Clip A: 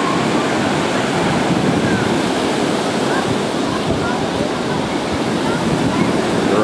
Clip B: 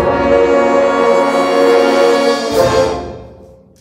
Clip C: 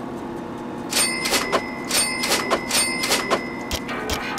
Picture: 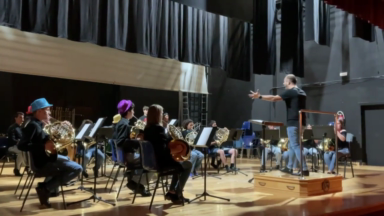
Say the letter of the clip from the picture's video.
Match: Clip B